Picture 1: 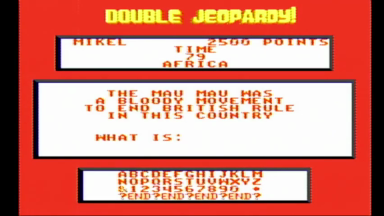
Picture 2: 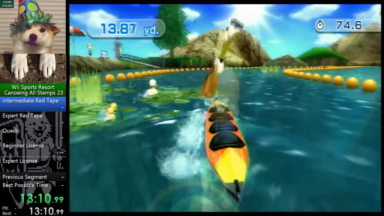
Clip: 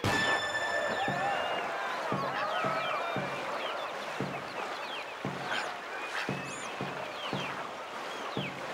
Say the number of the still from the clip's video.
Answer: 2